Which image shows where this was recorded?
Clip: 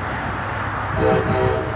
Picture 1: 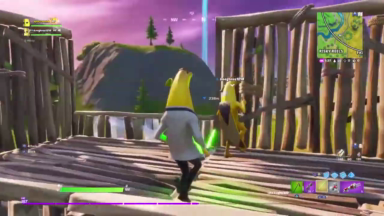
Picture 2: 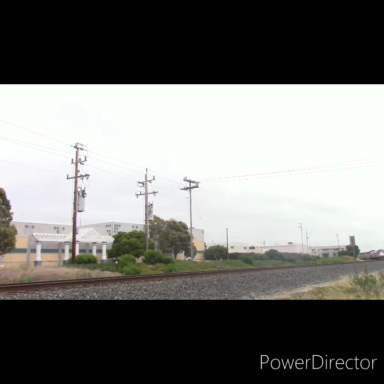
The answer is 2